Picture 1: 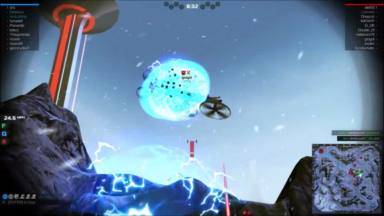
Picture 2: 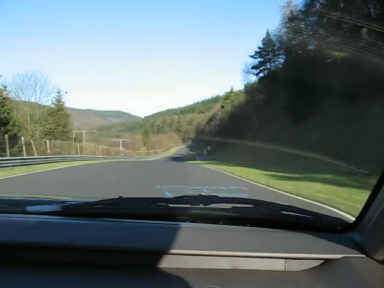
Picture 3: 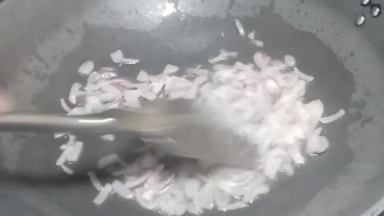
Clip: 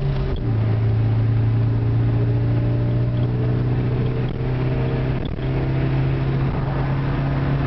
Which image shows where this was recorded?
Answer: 2